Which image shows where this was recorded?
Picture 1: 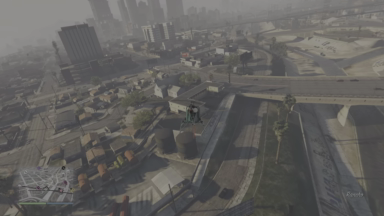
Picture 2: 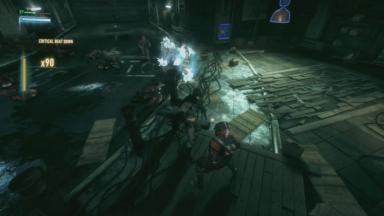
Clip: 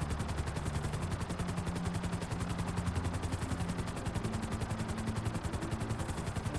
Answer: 1